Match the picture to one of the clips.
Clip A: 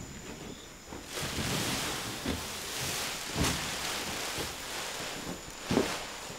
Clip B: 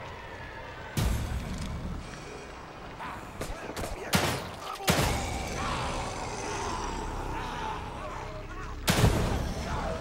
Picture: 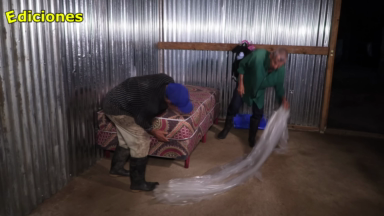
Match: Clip A